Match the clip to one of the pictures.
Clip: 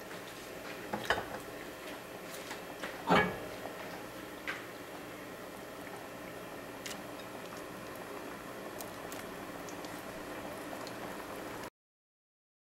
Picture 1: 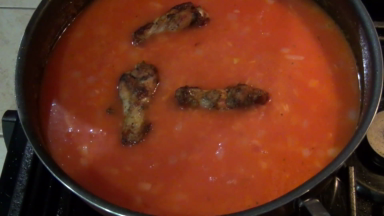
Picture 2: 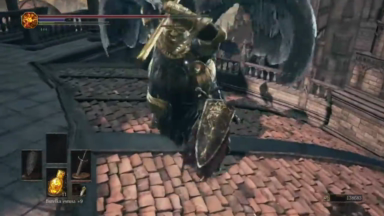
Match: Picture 1